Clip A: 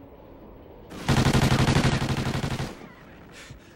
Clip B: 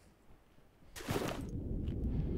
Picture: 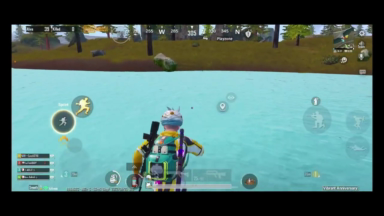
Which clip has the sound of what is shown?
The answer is B